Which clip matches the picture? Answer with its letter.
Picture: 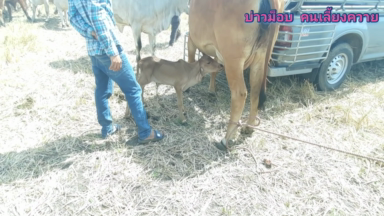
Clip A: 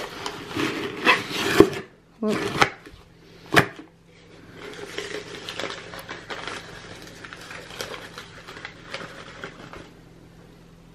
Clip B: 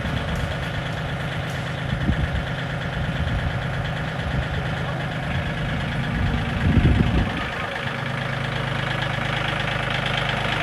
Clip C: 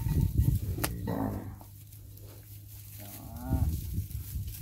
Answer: C